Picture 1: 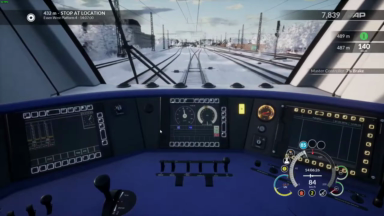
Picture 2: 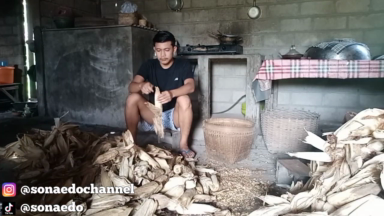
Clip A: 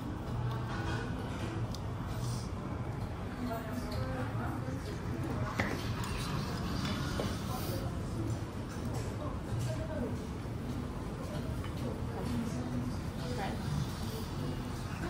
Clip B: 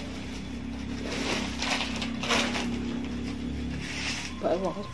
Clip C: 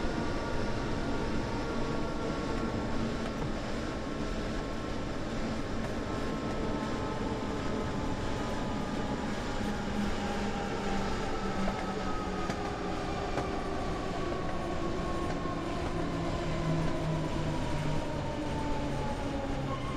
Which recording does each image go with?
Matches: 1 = C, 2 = B